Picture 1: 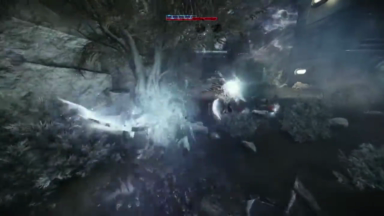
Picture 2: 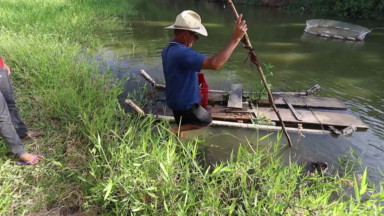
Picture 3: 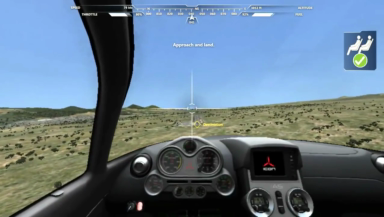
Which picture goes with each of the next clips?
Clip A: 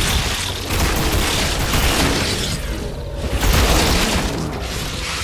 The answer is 1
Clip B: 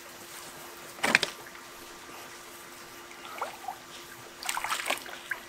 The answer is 2